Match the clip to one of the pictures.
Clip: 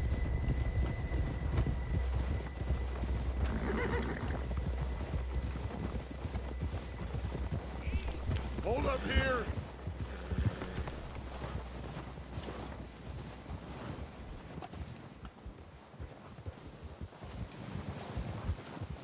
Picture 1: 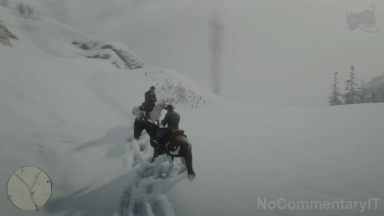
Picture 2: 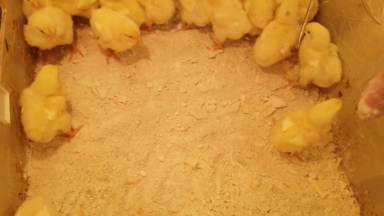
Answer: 1